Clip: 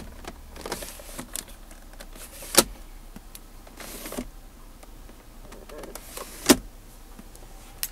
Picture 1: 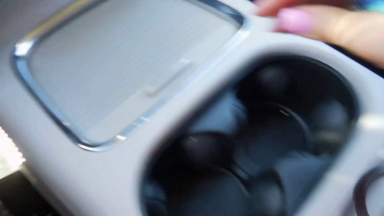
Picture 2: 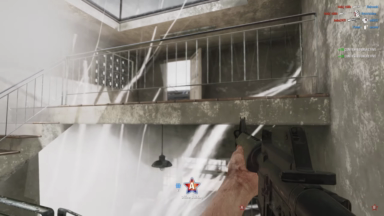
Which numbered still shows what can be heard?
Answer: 1